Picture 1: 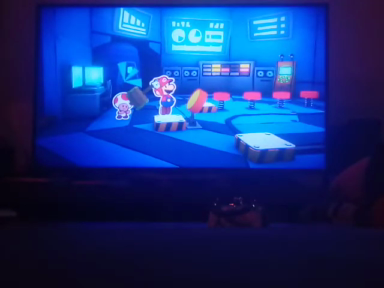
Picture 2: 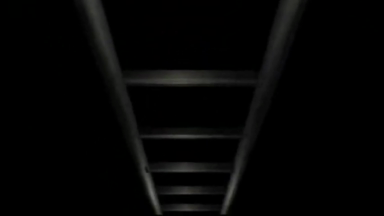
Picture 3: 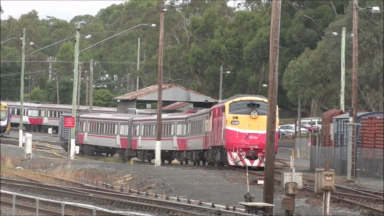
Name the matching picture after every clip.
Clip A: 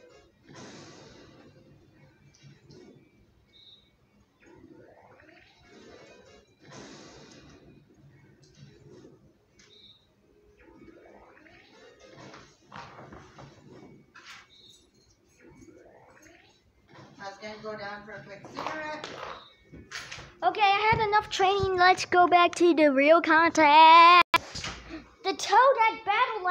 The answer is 1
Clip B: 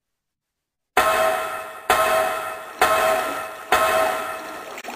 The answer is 2